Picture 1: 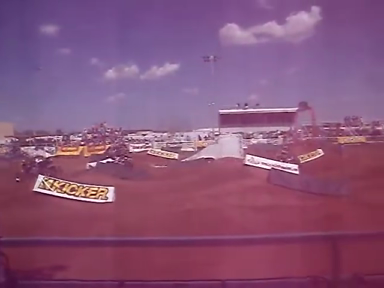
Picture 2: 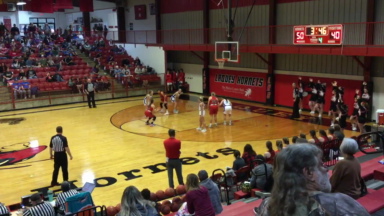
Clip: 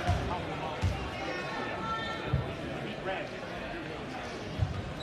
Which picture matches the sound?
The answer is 2